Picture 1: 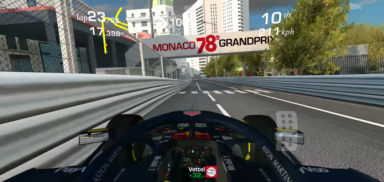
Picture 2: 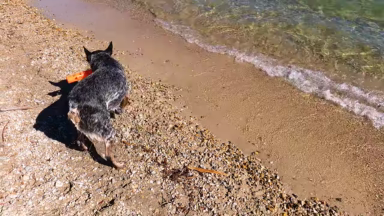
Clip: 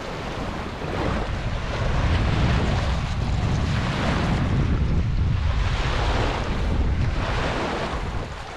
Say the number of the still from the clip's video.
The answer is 2